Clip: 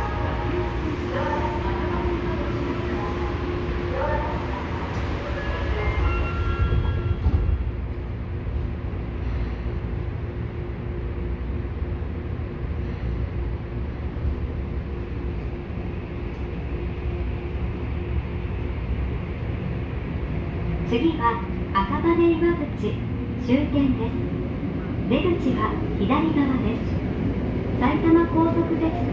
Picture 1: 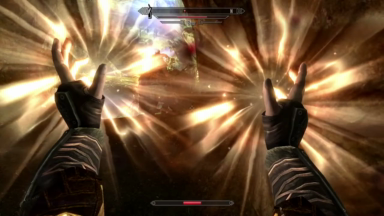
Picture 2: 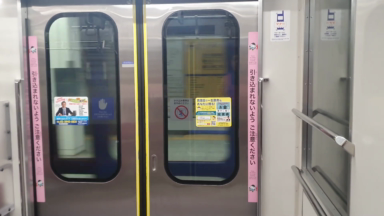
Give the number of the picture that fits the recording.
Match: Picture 2